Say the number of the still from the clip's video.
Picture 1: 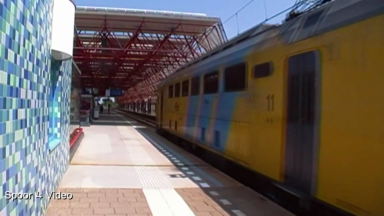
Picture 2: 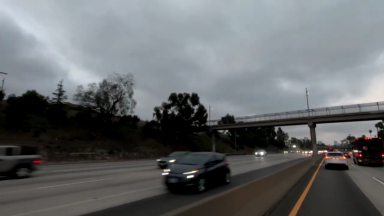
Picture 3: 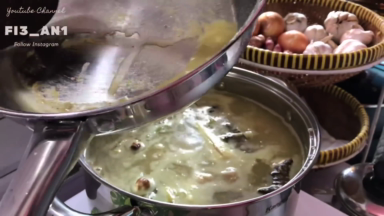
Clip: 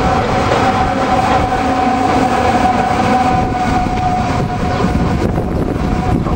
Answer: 1